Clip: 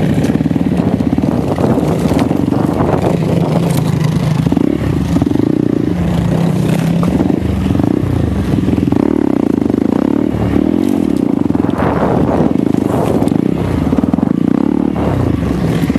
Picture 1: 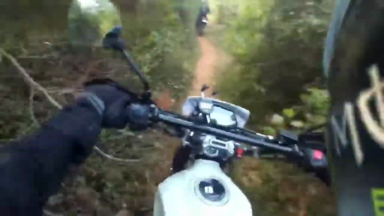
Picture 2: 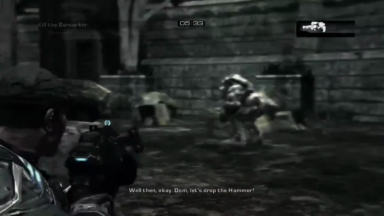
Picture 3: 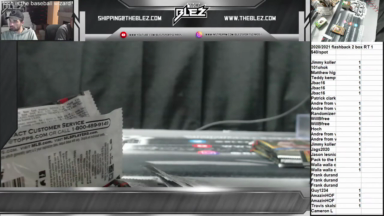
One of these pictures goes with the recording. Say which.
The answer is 1